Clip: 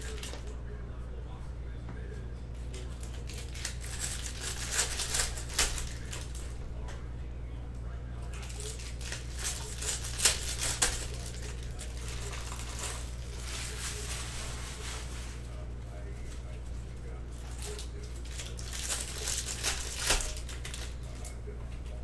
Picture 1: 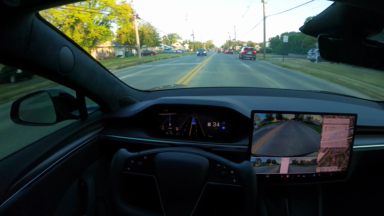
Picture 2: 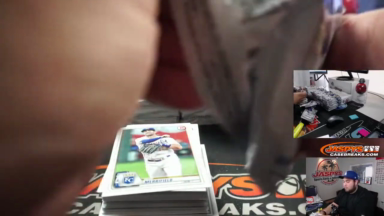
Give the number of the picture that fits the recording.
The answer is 2